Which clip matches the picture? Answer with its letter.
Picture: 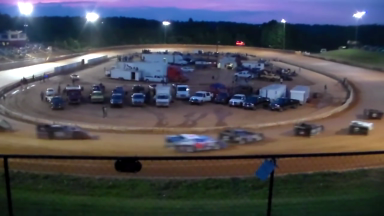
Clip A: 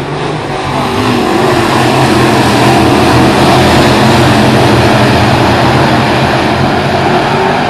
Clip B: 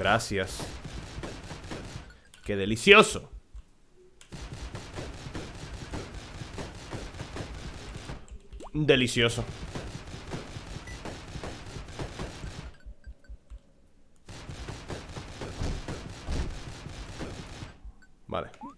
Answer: A